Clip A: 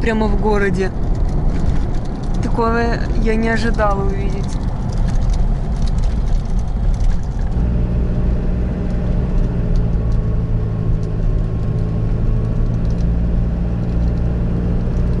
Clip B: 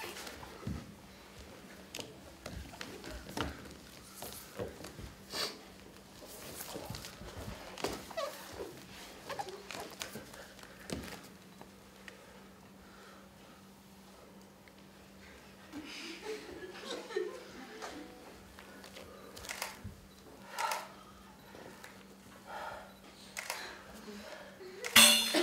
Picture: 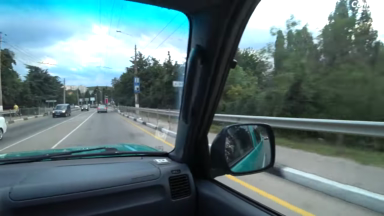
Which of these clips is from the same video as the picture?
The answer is A